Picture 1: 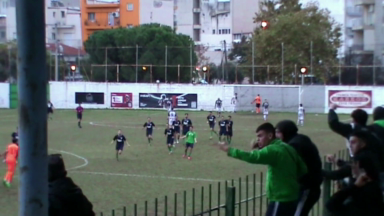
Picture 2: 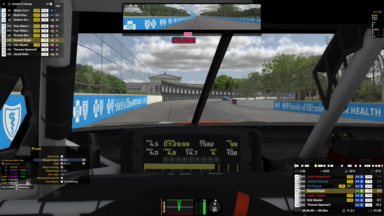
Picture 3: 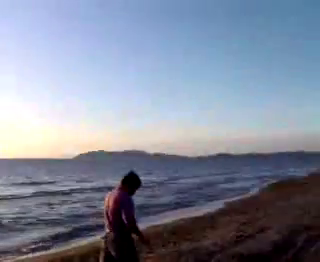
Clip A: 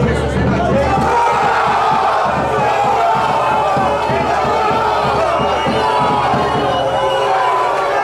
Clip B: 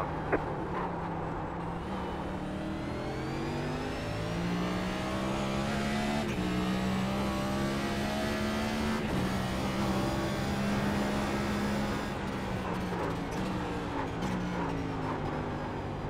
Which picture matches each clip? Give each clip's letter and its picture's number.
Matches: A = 1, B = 2